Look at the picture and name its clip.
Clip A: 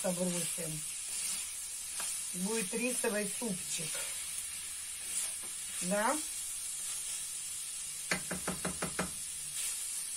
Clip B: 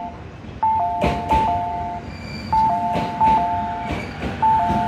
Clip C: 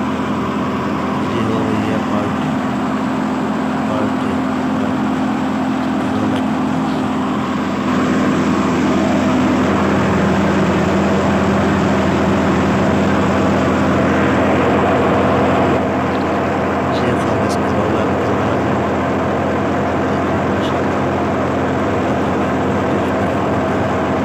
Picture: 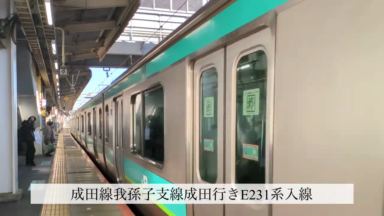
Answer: B